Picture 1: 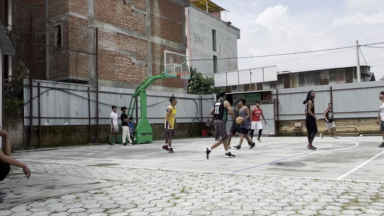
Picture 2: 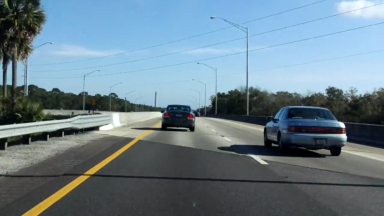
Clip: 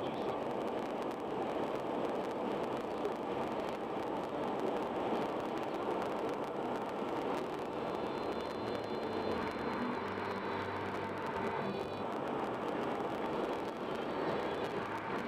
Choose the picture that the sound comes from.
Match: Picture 2